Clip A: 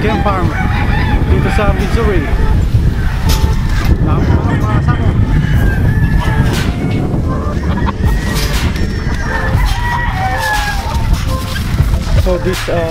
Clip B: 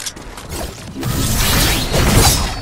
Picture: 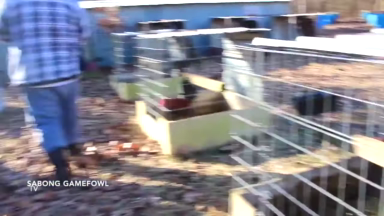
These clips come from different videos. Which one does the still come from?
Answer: A